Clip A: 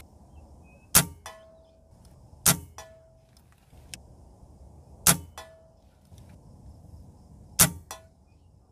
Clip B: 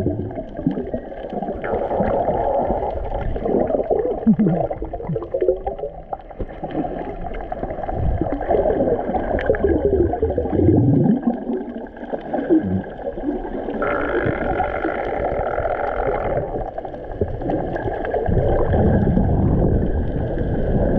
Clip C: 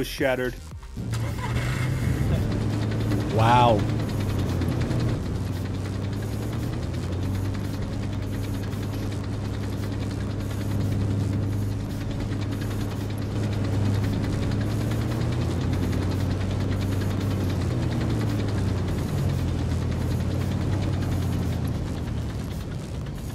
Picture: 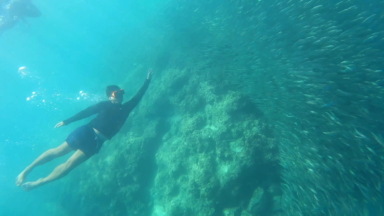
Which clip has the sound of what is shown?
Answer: B